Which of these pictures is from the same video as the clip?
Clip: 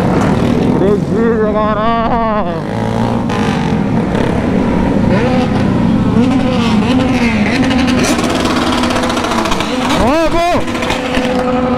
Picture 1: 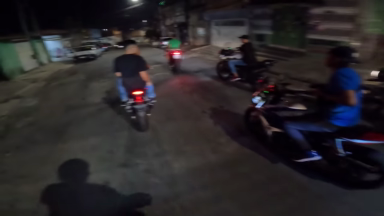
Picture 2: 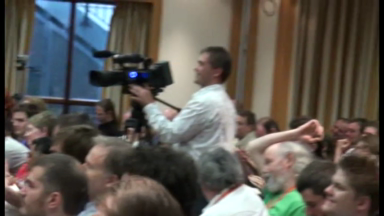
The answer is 1